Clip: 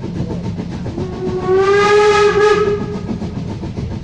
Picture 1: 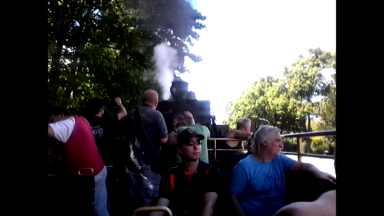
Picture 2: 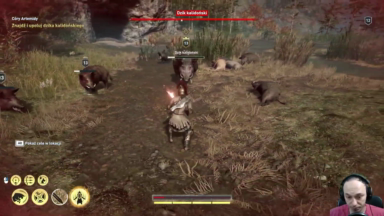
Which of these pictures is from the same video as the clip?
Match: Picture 1